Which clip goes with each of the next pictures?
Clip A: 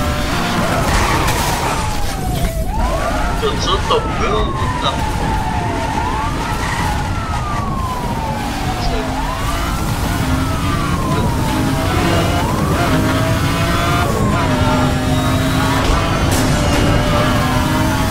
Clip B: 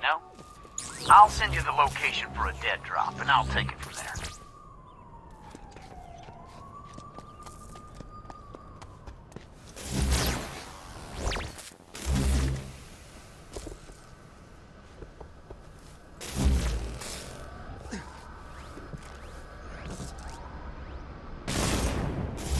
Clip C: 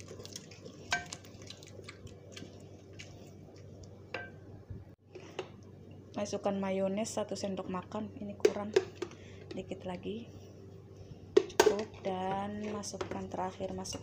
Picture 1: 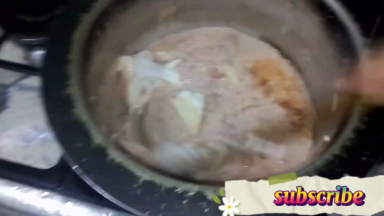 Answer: C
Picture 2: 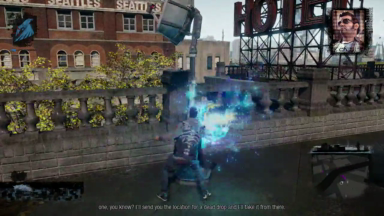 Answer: B